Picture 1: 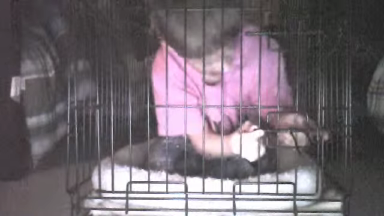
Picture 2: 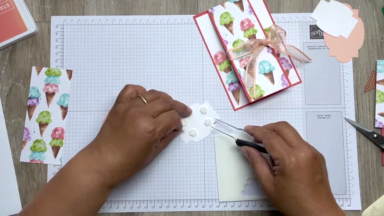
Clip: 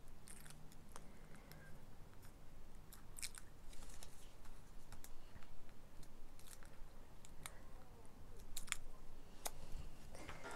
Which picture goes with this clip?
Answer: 2